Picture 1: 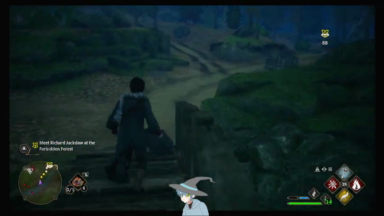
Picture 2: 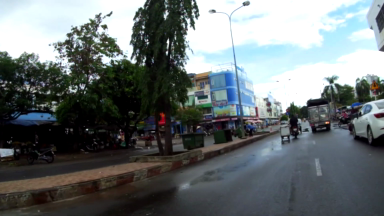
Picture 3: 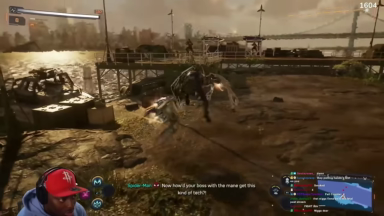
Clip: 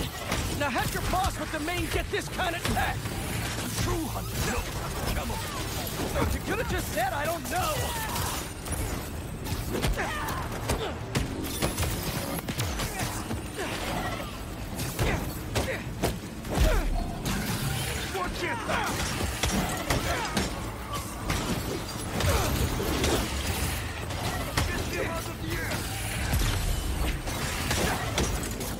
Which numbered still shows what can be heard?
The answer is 3